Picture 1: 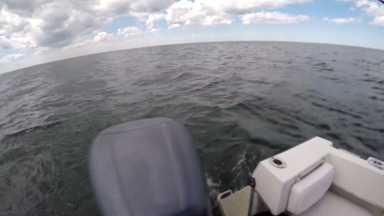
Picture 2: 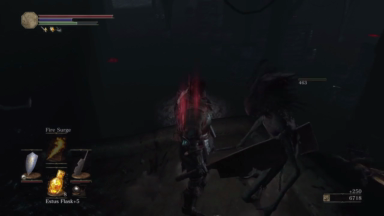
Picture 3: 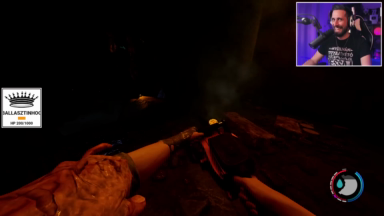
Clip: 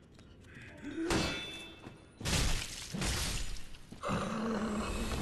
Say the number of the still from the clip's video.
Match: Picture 2